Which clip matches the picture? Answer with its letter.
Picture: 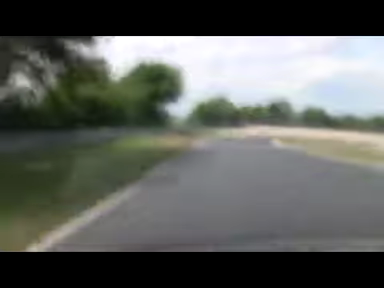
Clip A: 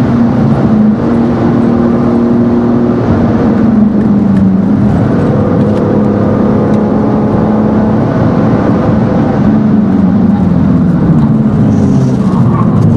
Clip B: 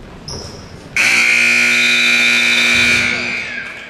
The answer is A